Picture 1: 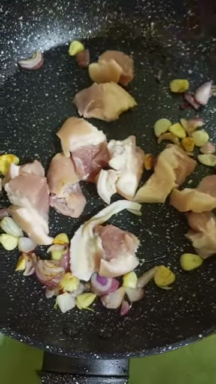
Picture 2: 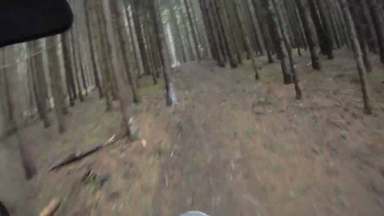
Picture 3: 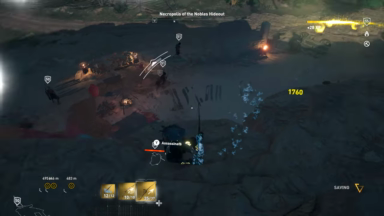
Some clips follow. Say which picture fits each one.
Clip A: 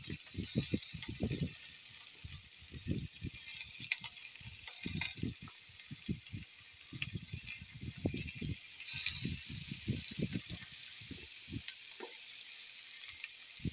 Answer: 1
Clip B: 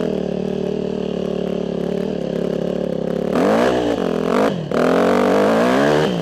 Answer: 2